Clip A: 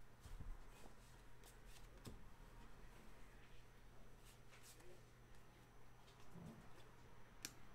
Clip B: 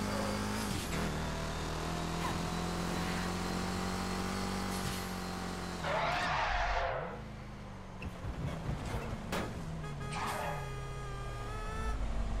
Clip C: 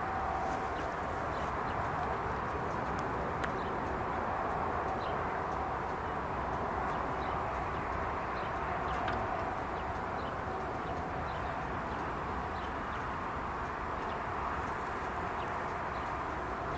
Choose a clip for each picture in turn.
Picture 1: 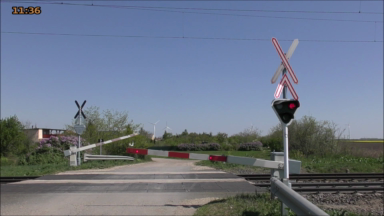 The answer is C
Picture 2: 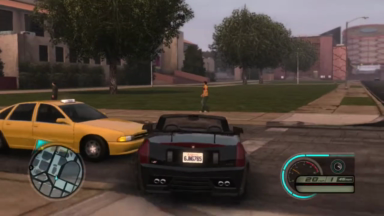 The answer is B